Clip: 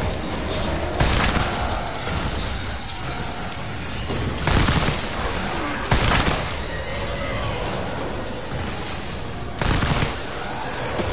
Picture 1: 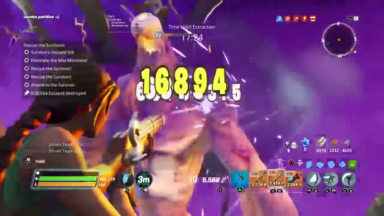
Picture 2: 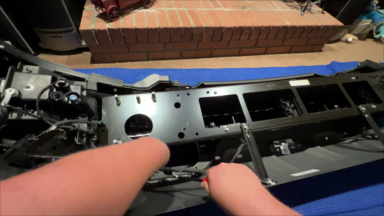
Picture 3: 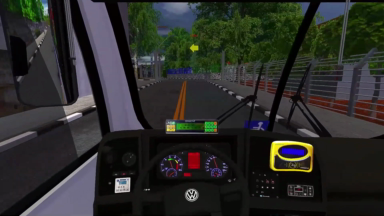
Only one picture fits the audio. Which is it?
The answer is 1